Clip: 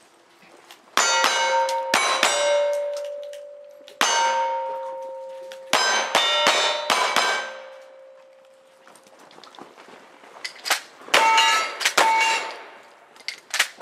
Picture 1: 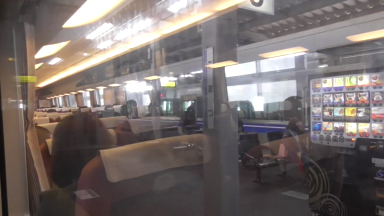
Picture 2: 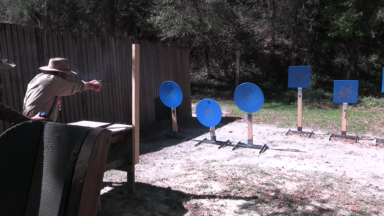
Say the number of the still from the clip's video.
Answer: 2